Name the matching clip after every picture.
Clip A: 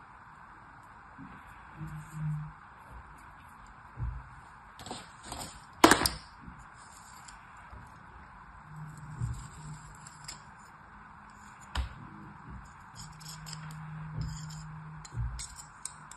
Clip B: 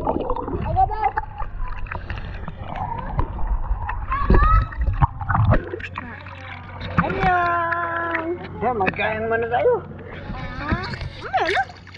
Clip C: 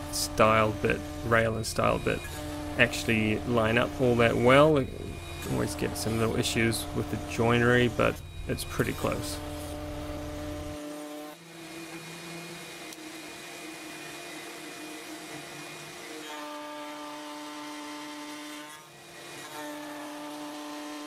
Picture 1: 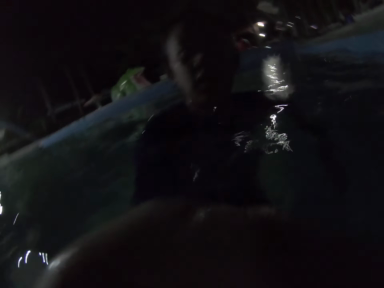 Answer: B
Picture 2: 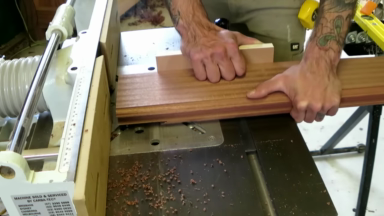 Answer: C